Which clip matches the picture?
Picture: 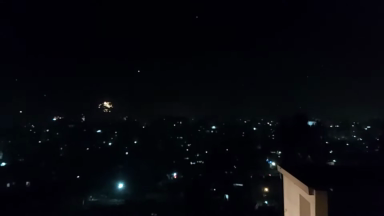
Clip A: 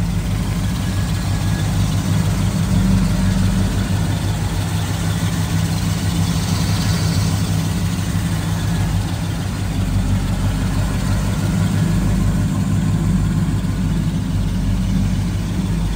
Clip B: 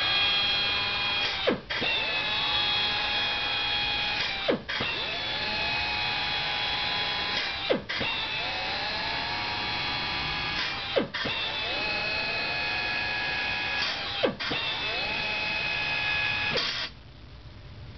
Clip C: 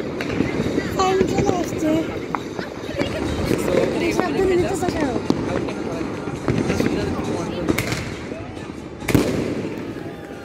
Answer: C